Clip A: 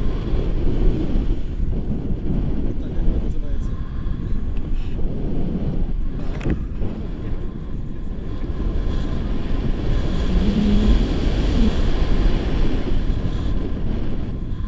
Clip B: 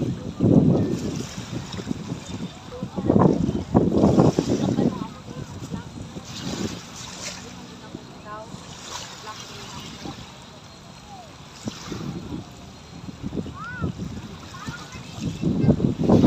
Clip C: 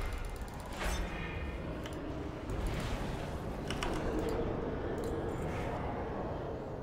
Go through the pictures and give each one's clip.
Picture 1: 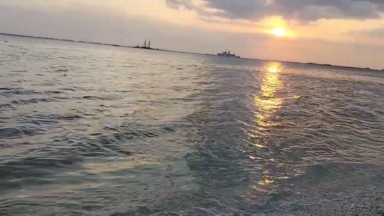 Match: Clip B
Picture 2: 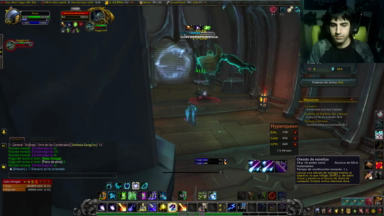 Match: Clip C